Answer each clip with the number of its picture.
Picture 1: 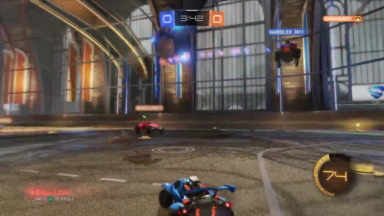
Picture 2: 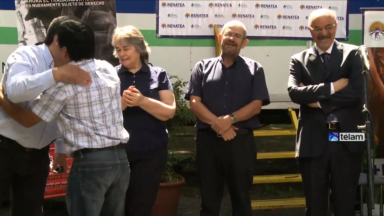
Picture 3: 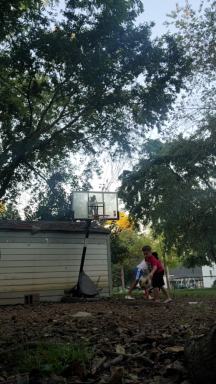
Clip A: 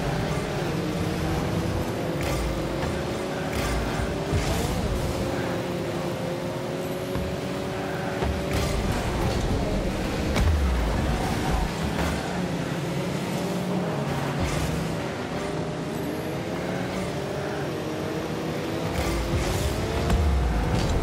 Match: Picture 1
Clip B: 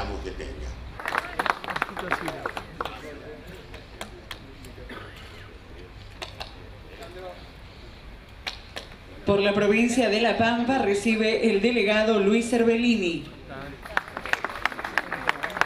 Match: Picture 2